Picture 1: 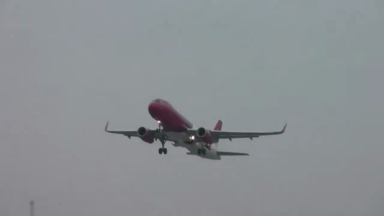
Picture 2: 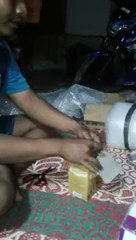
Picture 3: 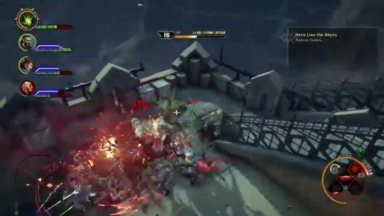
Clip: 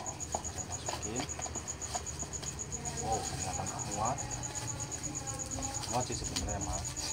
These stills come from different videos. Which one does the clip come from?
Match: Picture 2